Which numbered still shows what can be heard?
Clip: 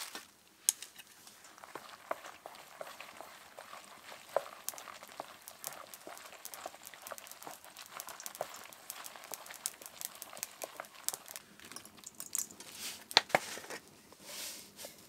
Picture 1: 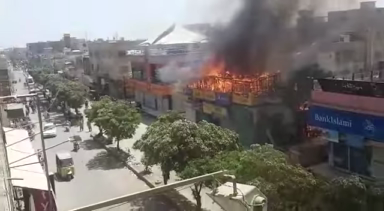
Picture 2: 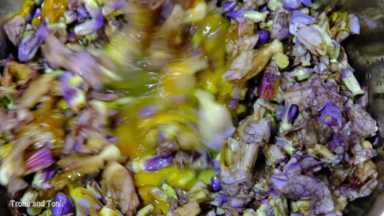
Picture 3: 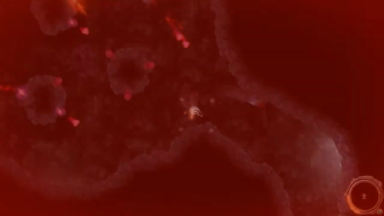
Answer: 2